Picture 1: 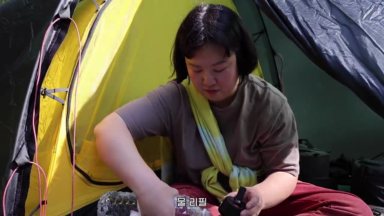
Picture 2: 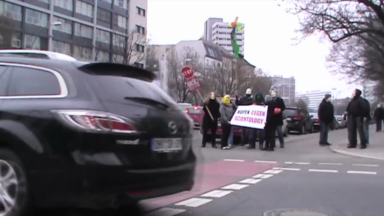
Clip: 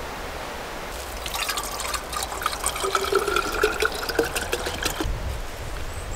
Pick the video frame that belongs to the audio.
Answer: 1